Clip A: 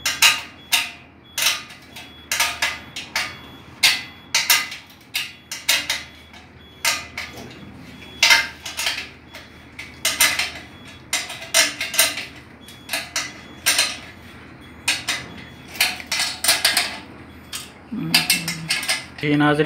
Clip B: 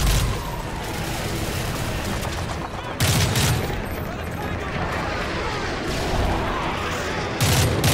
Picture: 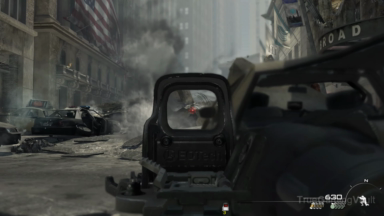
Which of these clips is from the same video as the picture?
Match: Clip B